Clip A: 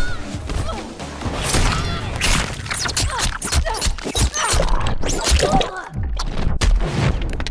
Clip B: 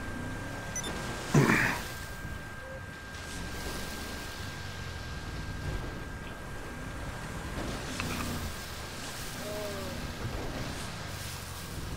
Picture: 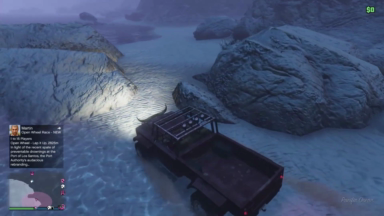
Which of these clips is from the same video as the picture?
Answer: B